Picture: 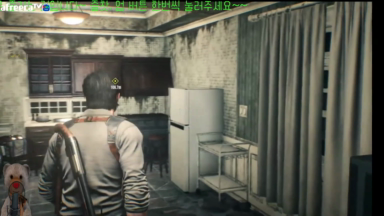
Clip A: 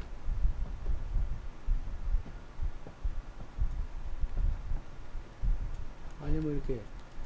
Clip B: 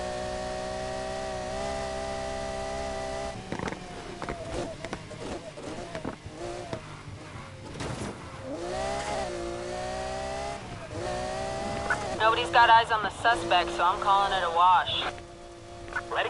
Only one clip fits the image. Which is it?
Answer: A